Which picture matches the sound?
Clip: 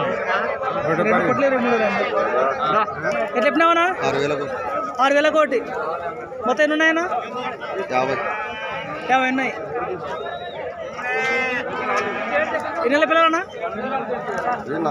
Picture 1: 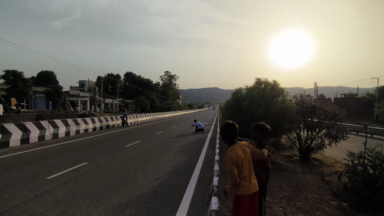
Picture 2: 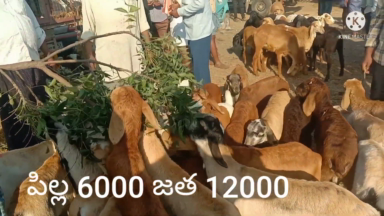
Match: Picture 2